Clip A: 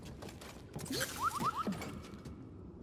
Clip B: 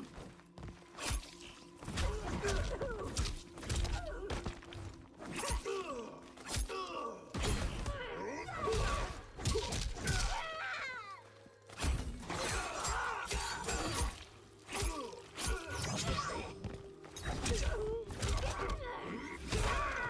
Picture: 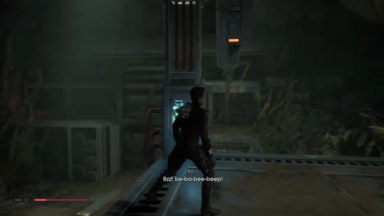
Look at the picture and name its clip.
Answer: A